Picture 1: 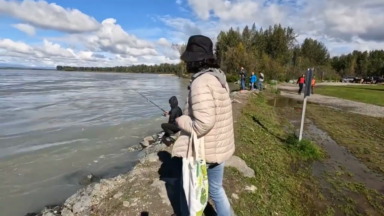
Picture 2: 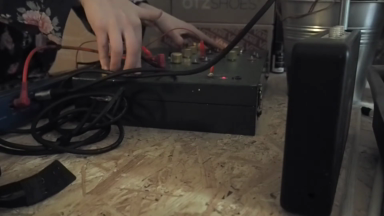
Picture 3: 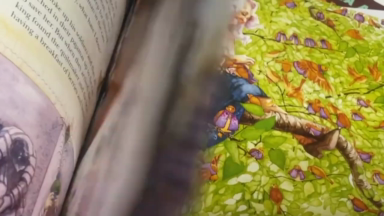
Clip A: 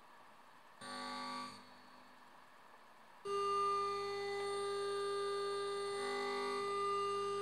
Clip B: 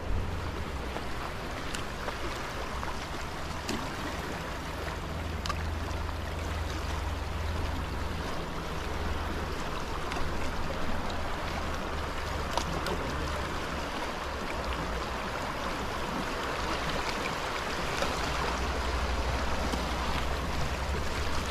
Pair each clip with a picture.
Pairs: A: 2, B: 1